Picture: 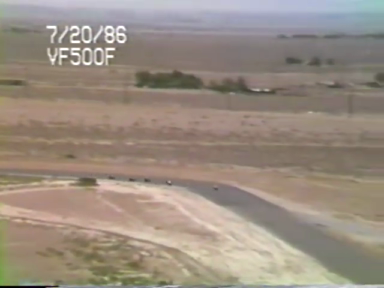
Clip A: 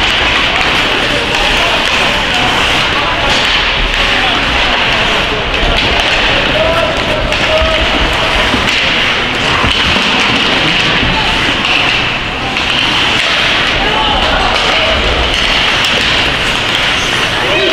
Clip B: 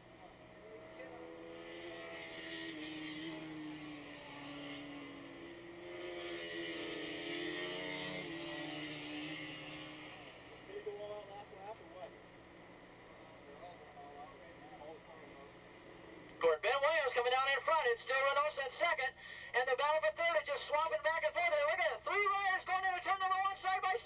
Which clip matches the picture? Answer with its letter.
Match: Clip B